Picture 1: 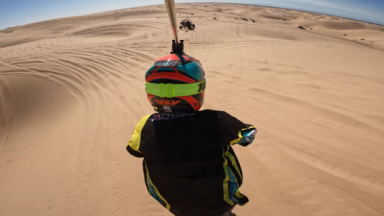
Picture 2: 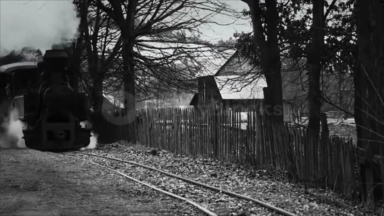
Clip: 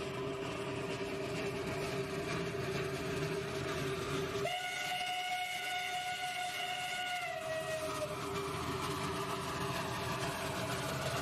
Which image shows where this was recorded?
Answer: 2